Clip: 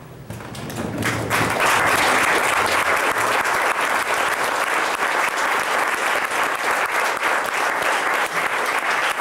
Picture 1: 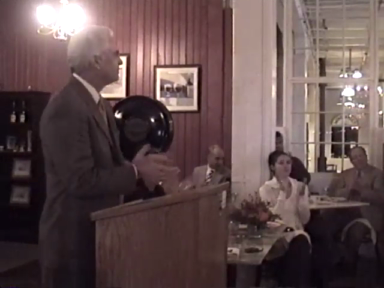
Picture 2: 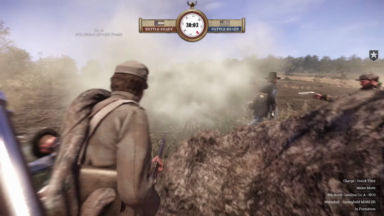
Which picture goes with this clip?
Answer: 1